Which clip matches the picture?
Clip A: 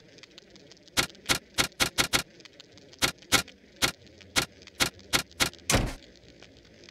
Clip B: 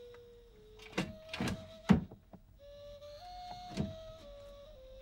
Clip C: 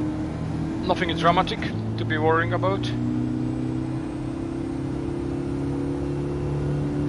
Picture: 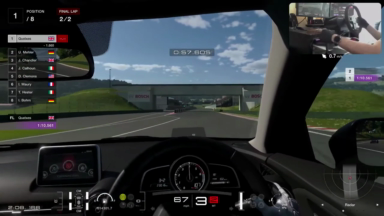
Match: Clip C